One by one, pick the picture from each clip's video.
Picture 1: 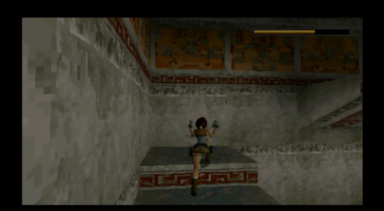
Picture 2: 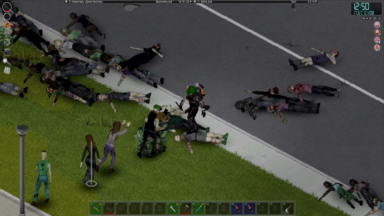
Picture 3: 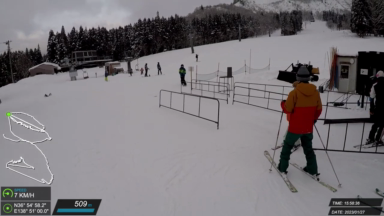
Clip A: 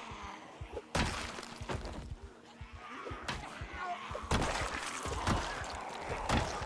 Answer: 2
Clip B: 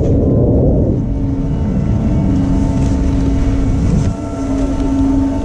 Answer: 3